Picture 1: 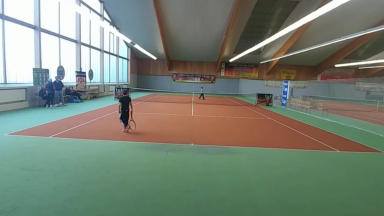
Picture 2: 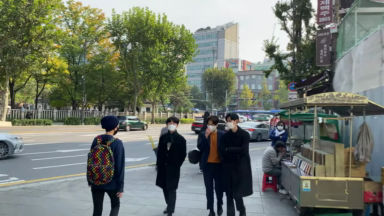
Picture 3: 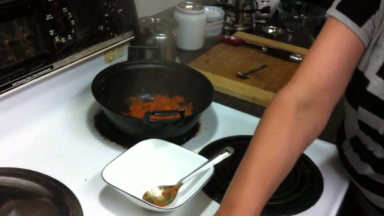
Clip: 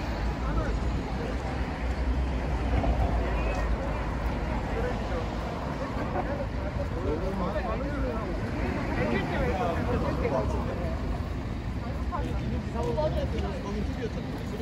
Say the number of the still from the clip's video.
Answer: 2